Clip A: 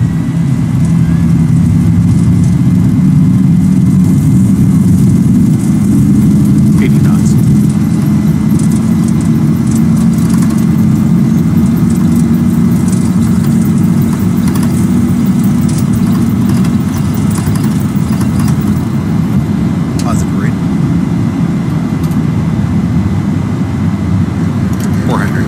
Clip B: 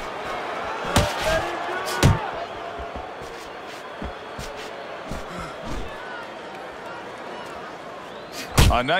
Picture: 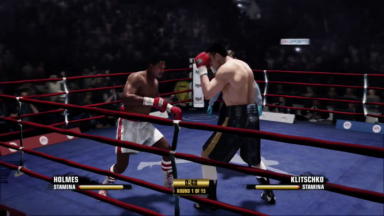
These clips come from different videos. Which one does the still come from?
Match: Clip B